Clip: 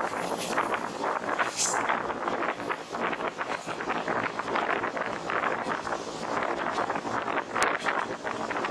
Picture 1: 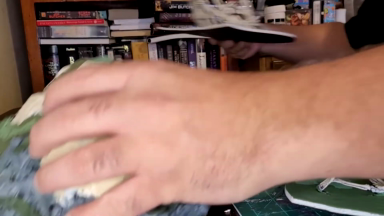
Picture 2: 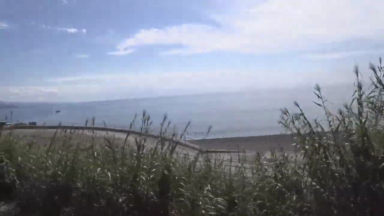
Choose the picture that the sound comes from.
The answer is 2